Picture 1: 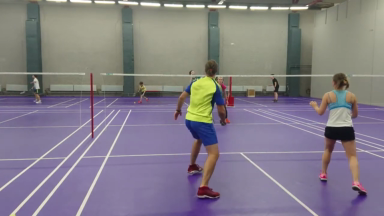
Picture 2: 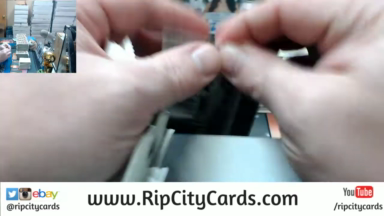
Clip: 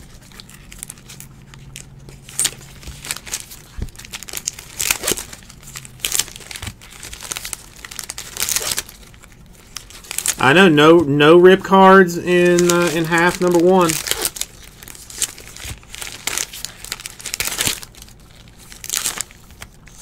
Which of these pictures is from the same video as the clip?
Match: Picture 2